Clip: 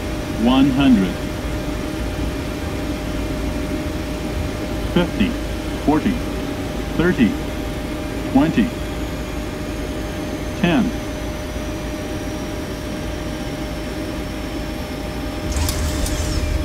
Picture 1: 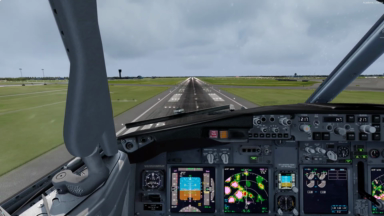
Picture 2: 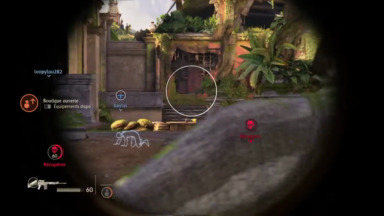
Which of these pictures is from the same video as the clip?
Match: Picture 1